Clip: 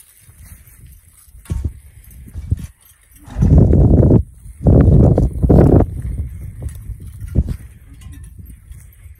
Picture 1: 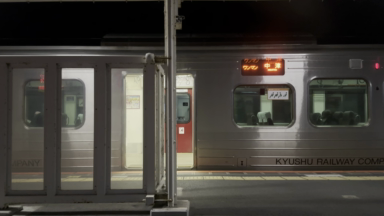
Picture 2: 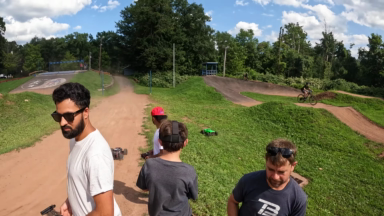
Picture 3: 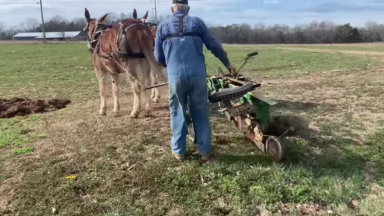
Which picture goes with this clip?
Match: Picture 3